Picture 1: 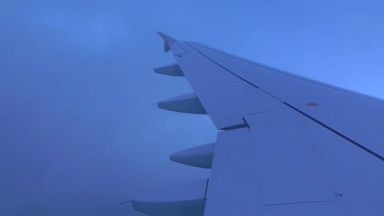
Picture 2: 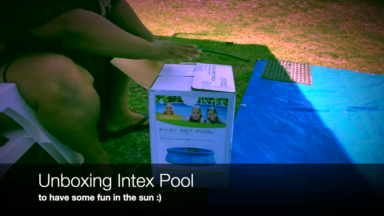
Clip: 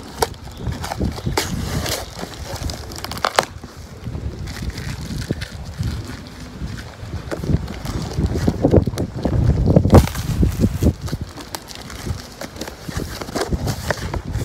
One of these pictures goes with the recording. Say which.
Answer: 2